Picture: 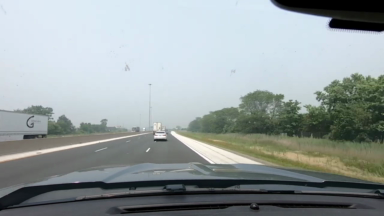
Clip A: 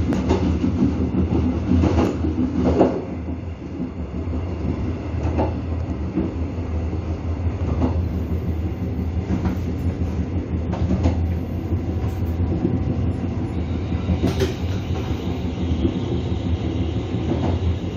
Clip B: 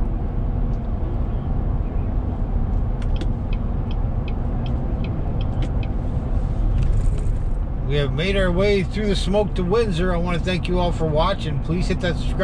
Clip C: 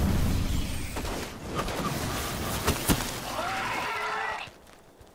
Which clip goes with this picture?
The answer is B